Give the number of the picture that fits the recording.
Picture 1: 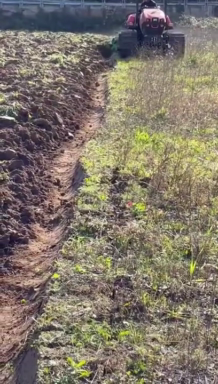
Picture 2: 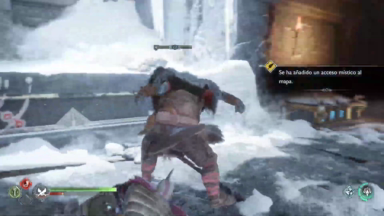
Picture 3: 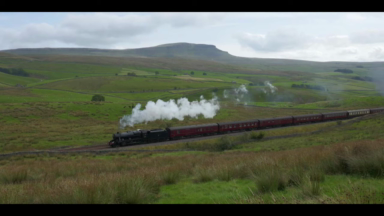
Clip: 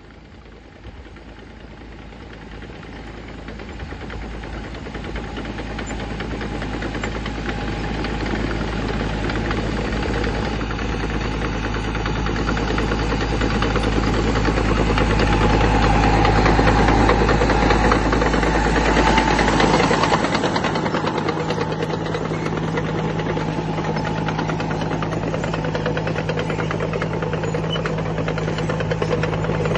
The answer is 1